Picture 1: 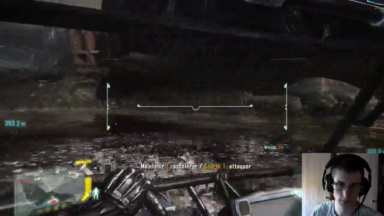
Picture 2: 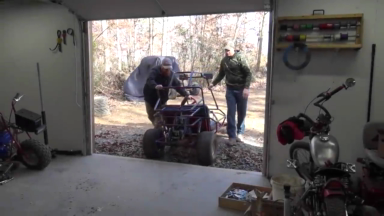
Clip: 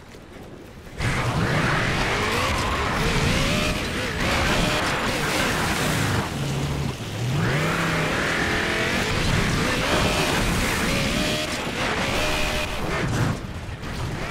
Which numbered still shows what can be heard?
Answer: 1